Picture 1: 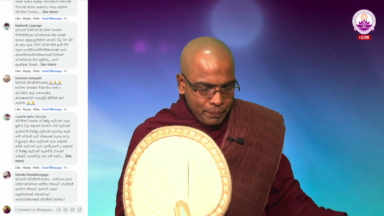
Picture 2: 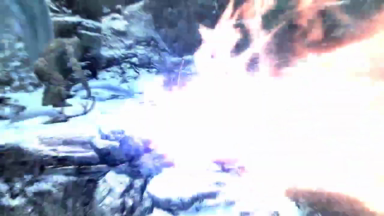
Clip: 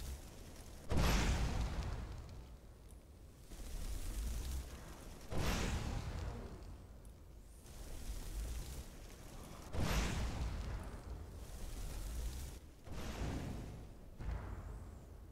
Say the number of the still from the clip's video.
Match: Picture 2